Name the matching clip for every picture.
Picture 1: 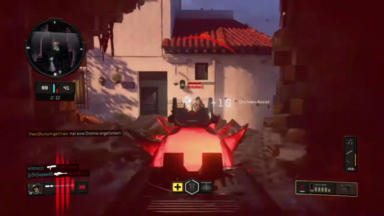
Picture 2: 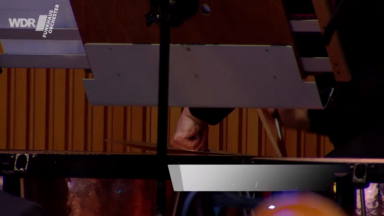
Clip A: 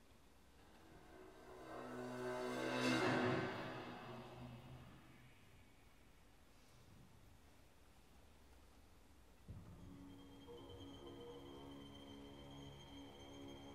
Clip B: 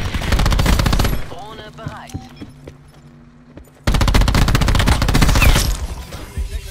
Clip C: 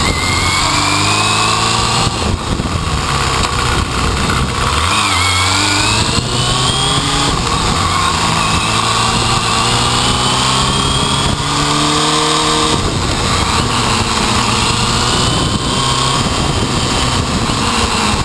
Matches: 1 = B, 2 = A